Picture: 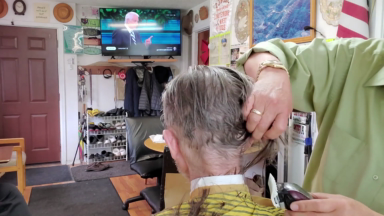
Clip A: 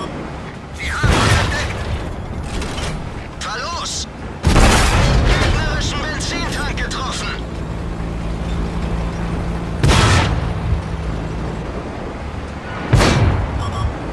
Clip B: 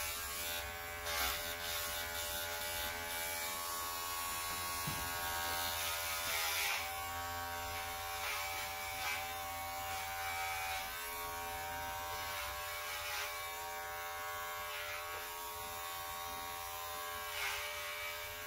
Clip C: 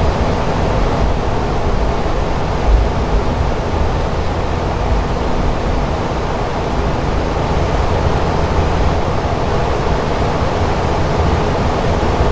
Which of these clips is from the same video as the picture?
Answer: B